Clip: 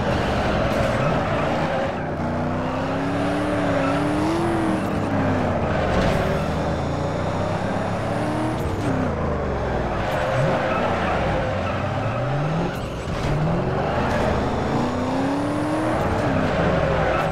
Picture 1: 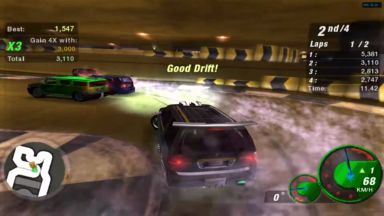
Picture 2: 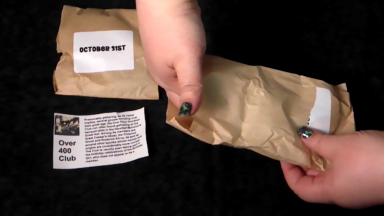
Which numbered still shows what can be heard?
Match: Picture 1